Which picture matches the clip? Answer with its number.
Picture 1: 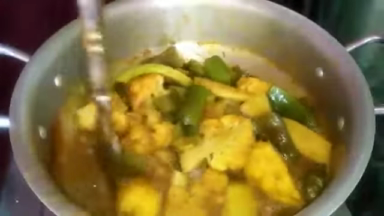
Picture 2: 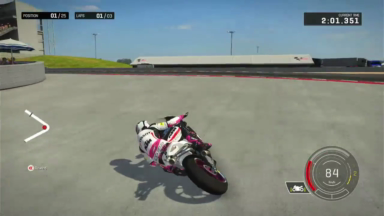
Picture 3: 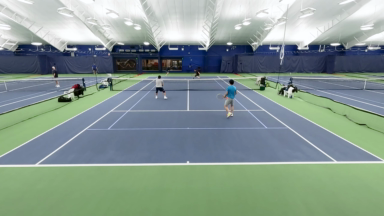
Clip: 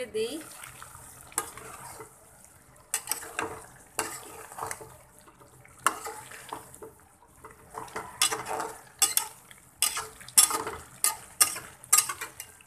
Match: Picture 1